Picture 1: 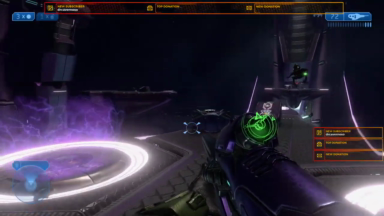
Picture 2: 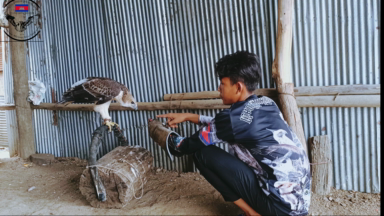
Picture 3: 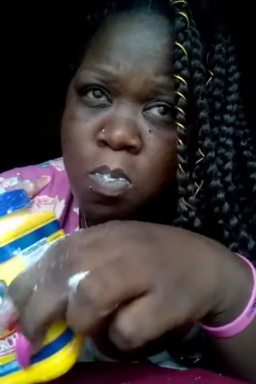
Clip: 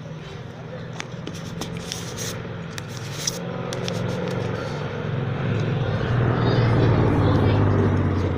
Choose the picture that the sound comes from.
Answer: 3